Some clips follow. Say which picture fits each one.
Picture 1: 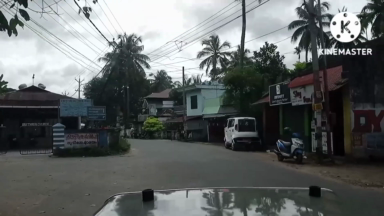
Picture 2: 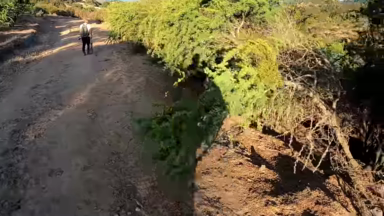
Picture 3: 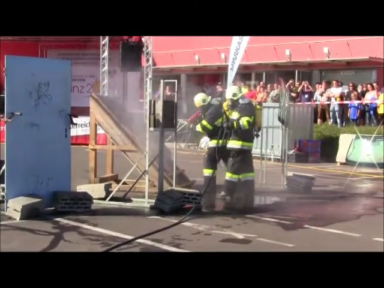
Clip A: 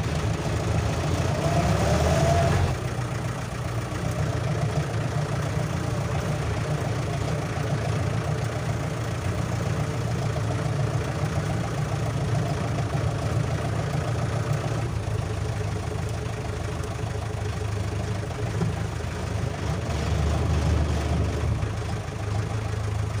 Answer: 1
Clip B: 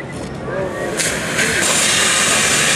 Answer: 3